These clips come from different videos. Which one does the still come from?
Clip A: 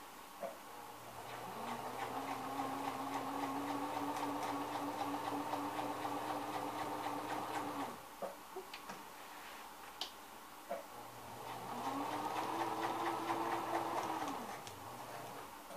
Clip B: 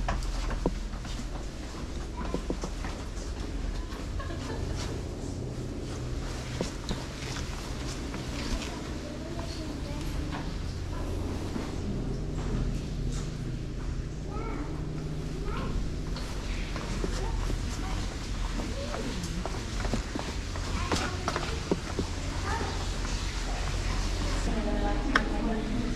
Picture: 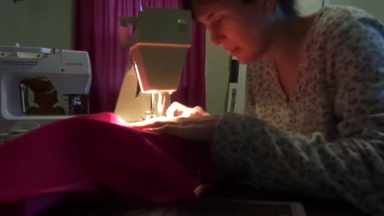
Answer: A